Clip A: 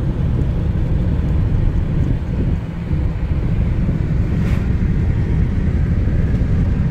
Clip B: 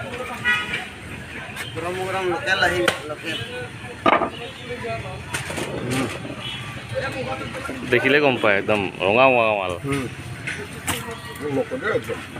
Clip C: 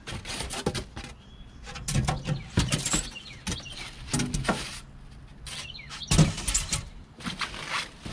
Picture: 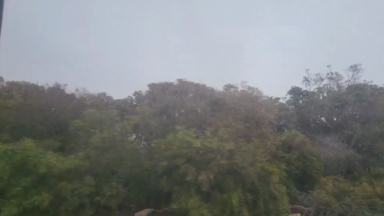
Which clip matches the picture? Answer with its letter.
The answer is A